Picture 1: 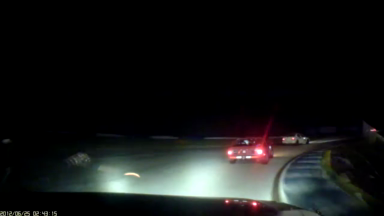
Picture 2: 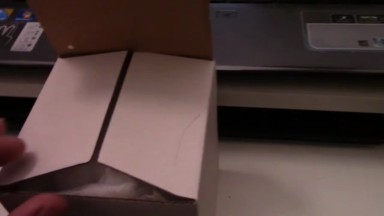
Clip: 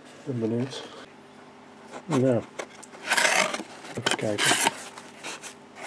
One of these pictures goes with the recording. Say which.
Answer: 2